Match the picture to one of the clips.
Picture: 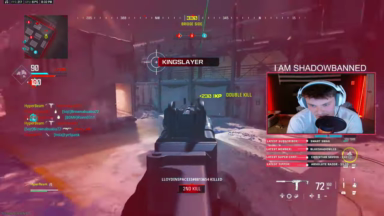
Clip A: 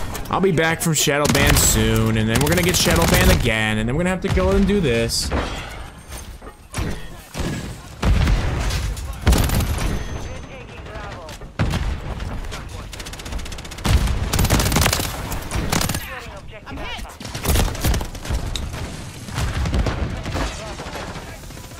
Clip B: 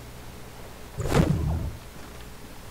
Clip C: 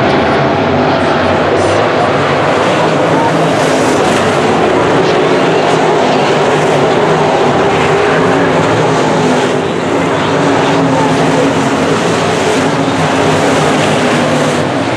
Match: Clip A